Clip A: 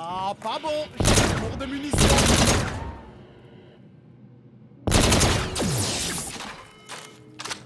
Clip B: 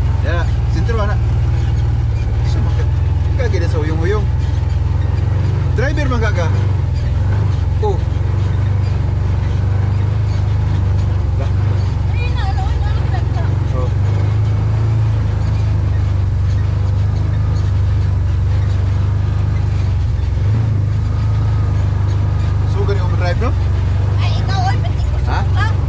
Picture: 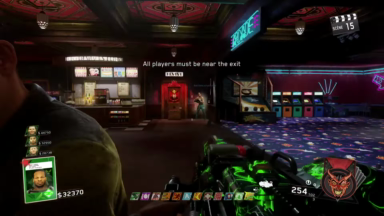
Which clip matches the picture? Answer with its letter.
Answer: A